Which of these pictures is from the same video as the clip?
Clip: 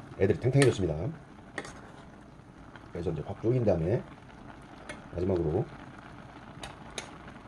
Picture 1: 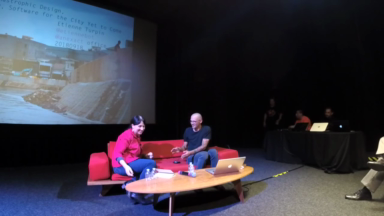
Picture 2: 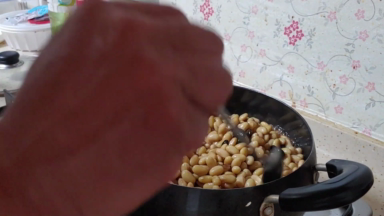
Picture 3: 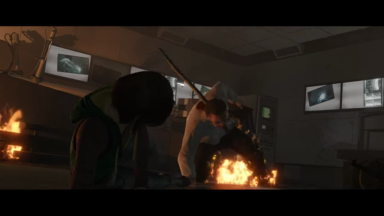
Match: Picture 2